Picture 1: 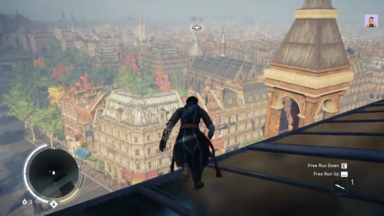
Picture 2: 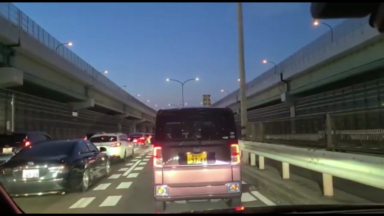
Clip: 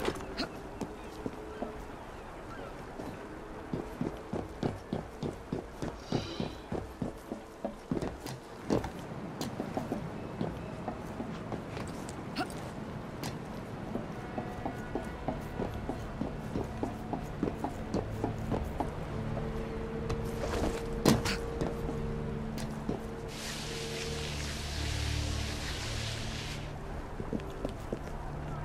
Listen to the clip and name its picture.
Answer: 1